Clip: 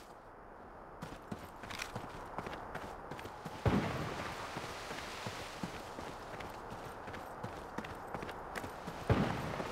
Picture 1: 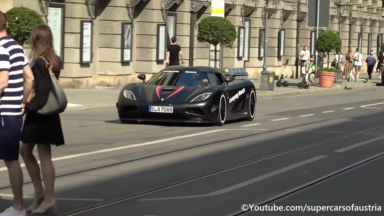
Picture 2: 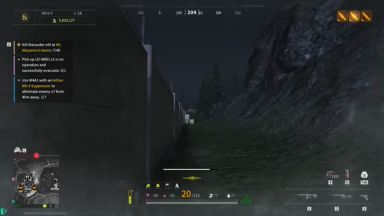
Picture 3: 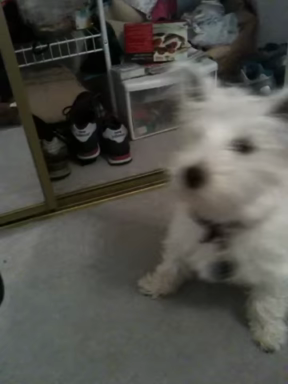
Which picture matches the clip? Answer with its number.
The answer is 2